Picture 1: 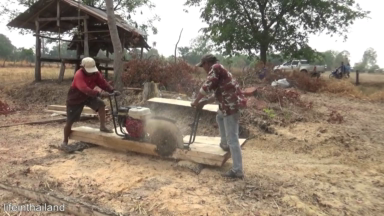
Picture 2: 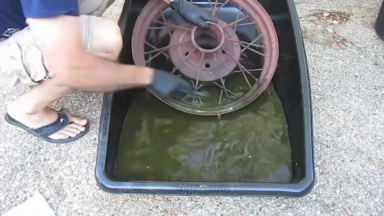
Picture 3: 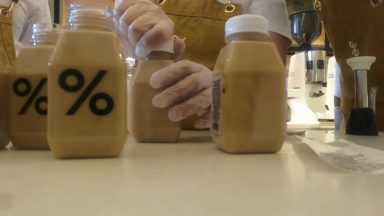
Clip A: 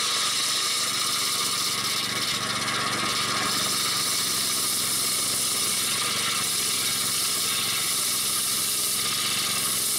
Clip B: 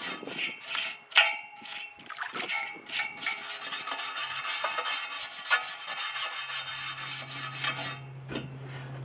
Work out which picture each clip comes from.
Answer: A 1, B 2